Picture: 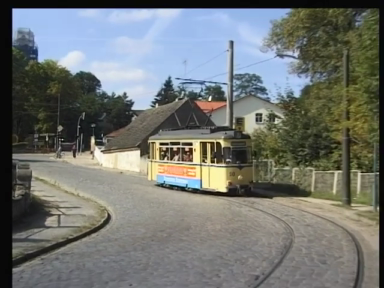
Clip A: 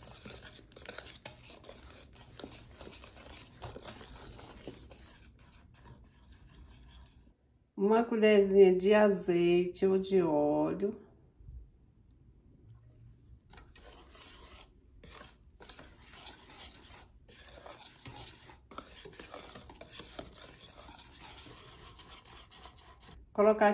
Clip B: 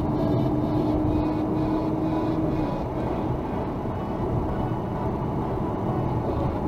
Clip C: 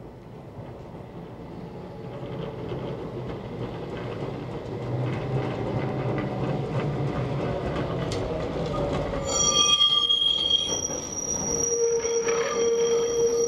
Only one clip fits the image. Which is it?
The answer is C